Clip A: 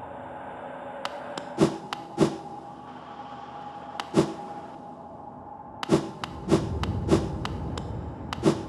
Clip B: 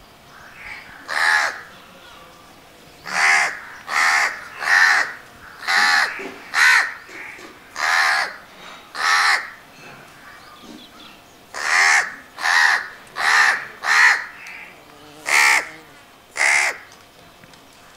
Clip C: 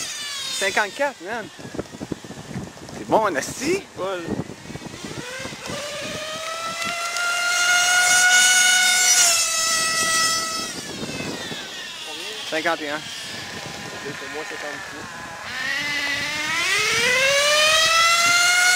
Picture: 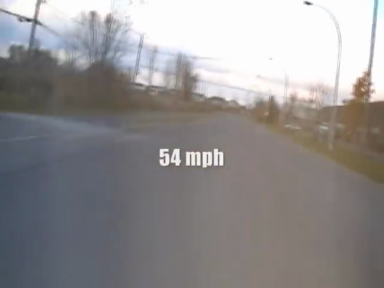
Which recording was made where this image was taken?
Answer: C